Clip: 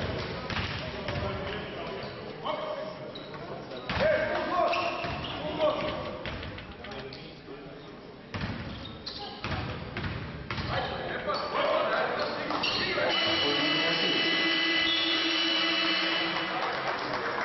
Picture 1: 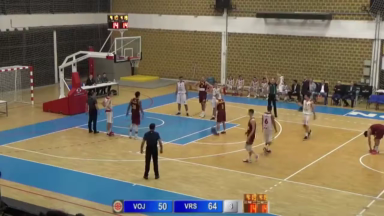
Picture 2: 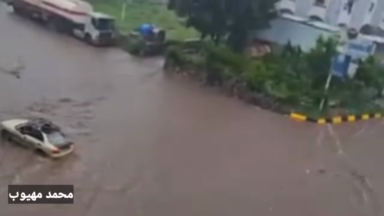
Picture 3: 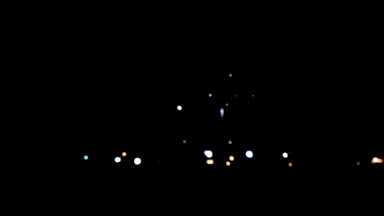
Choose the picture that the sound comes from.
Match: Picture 1